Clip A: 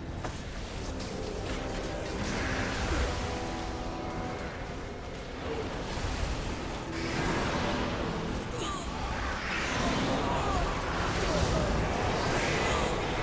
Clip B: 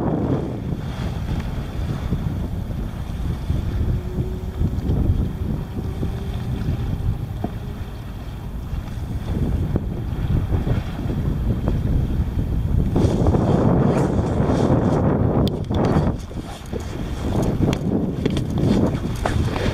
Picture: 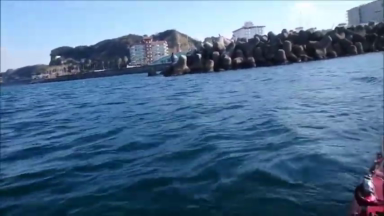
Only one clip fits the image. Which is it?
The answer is B